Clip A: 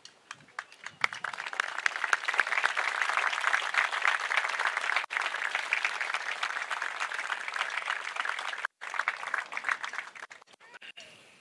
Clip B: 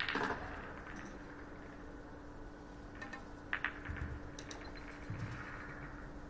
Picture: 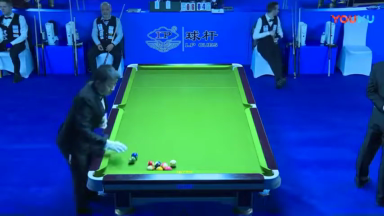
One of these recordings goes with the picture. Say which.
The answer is B